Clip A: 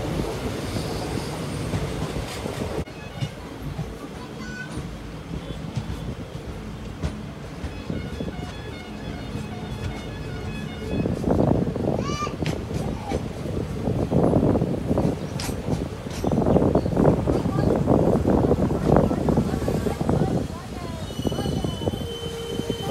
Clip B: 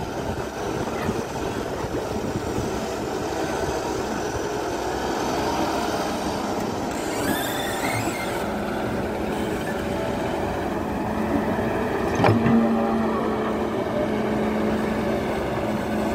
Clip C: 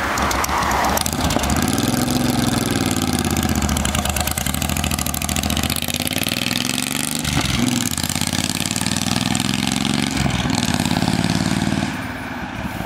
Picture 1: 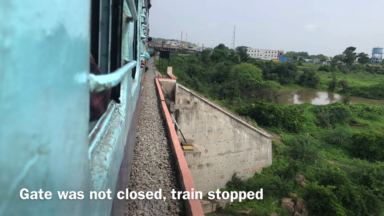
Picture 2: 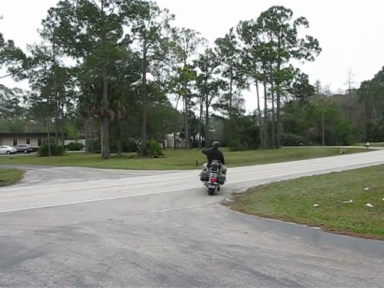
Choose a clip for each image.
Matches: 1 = A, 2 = C